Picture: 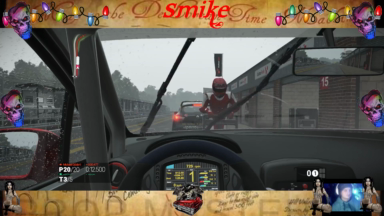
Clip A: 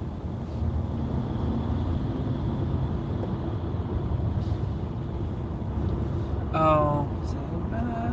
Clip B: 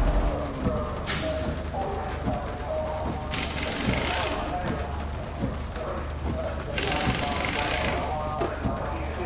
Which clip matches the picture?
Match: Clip B